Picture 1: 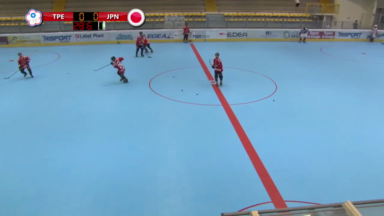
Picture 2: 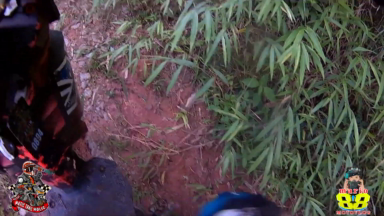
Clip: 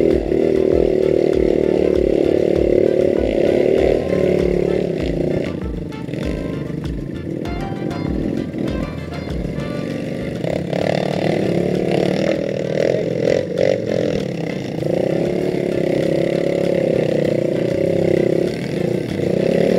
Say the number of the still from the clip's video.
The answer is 2